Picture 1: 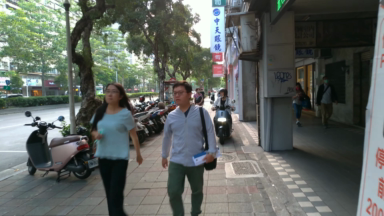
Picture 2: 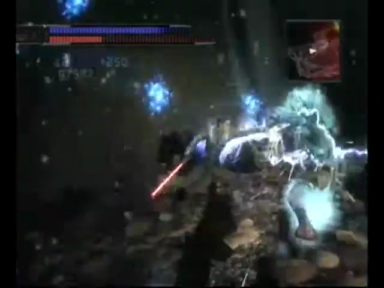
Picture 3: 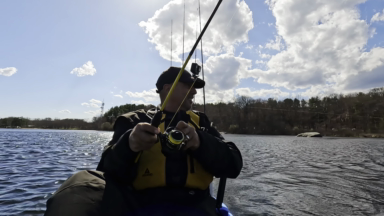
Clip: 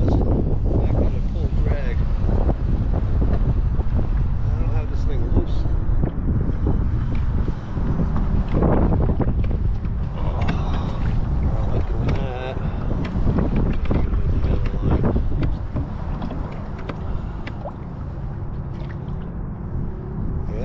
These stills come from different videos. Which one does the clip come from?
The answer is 3